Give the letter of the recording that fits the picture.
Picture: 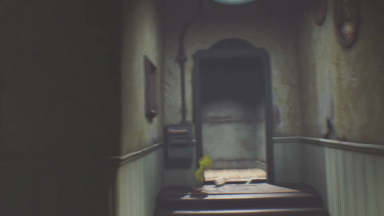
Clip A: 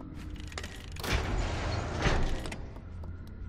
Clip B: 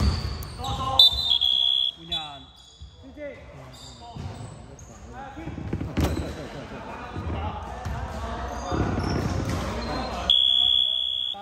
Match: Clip A